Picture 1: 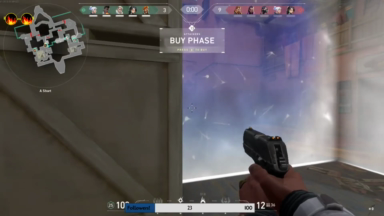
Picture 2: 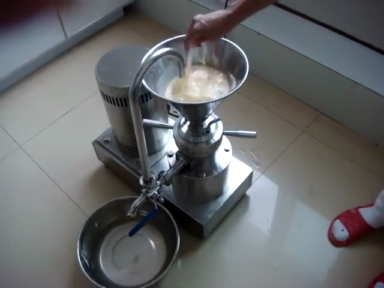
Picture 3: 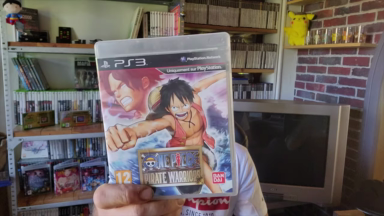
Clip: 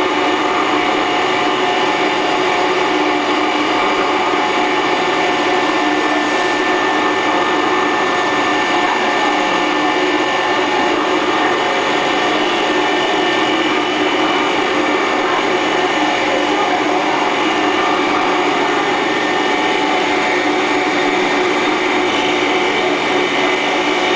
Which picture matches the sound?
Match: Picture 2